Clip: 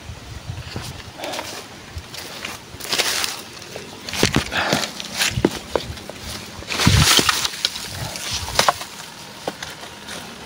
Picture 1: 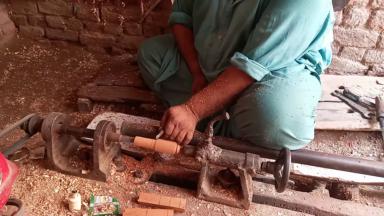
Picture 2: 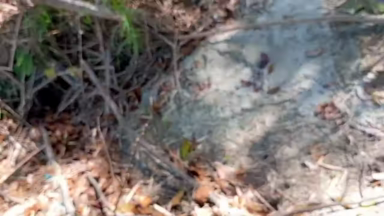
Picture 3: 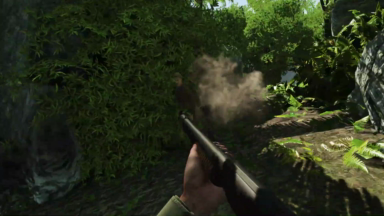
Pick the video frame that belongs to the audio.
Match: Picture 2